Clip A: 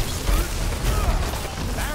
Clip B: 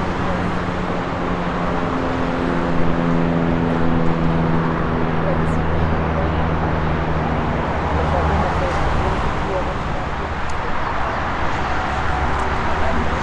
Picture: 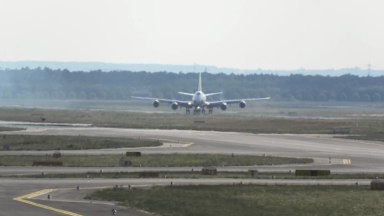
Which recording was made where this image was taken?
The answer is B